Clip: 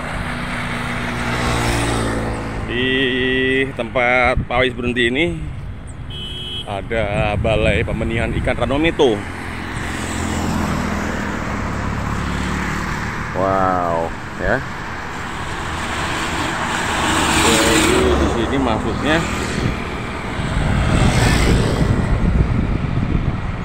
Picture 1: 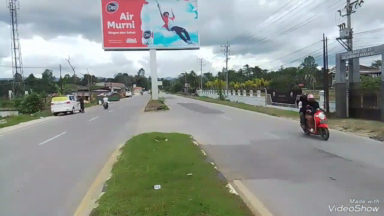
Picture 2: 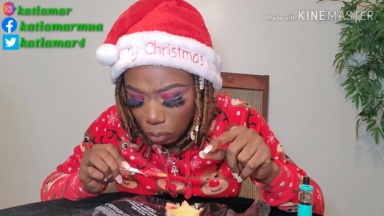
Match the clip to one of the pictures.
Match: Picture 1